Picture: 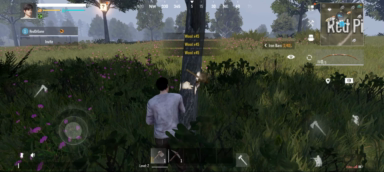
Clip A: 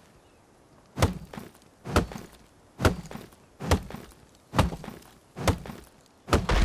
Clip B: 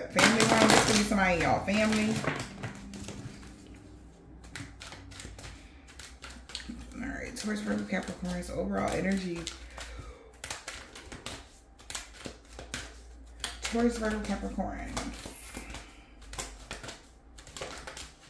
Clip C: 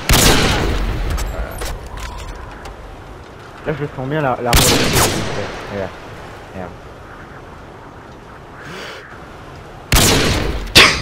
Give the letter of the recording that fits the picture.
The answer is A